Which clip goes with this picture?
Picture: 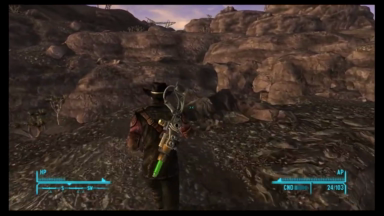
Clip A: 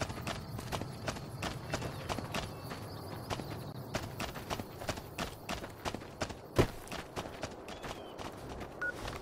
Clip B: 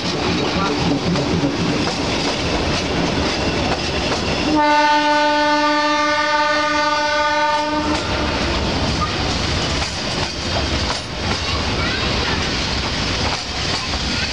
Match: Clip A